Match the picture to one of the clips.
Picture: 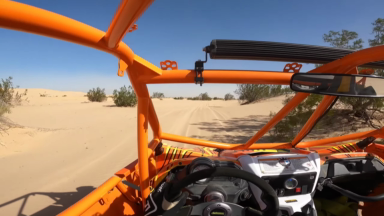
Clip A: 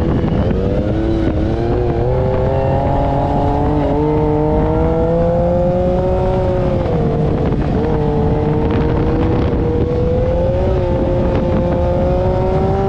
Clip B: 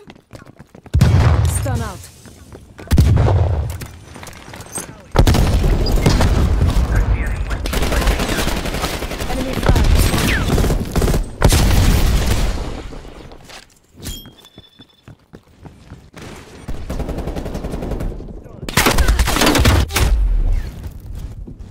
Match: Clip A